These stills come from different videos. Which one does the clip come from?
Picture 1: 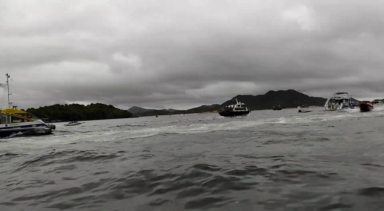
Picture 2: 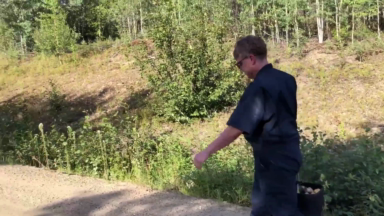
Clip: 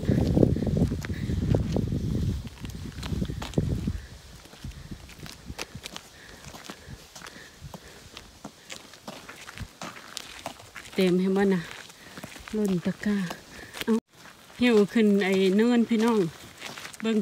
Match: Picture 2